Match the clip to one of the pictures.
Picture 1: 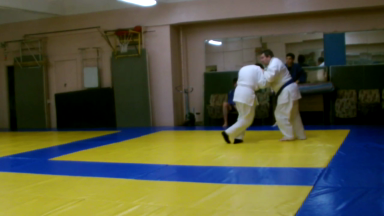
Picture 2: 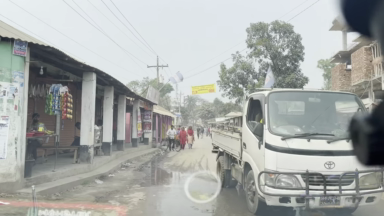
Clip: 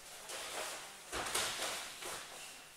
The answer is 1